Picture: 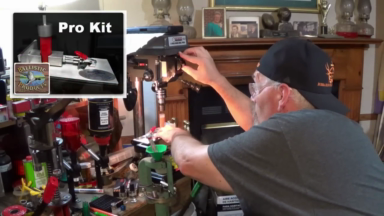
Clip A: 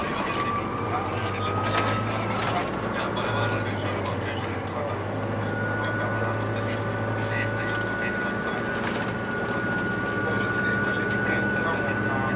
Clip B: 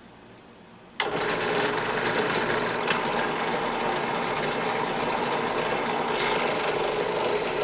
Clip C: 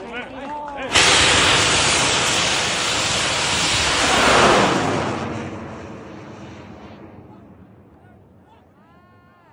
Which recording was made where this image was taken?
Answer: B